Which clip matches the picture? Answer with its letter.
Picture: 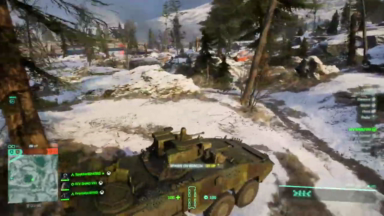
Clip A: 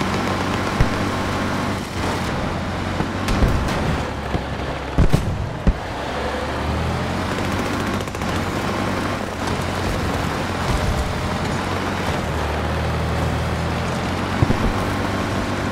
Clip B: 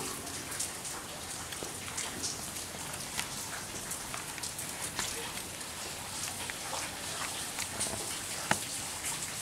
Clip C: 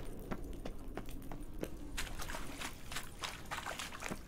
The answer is A